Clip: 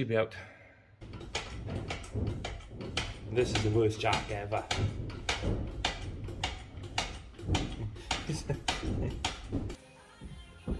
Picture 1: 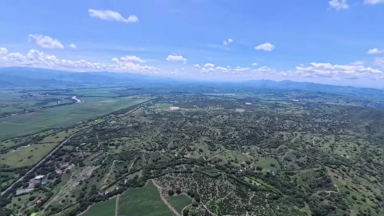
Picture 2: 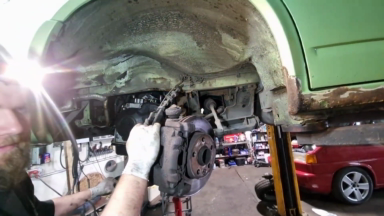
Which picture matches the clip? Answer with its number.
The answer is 2